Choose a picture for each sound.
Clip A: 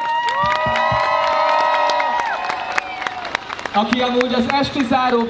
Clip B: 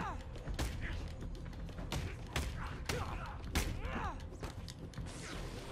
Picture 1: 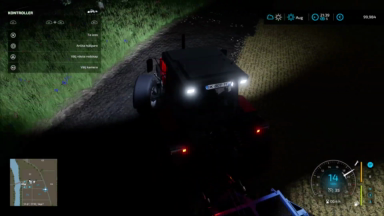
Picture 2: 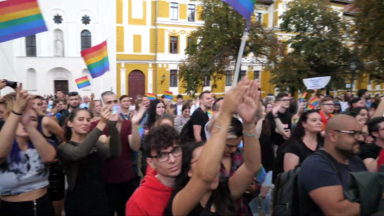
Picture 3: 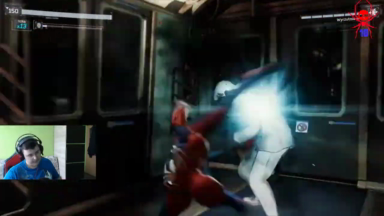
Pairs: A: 2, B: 3